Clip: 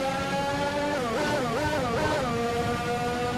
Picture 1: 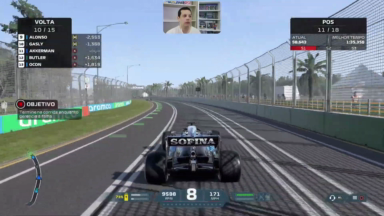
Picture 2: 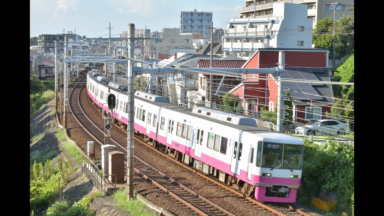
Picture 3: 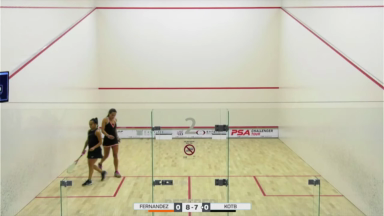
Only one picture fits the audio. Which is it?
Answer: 1